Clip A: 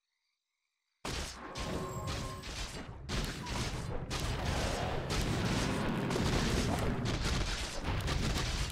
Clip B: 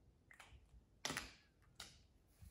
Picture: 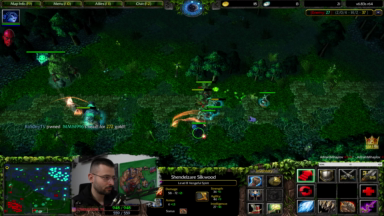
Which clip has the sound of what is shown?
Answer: A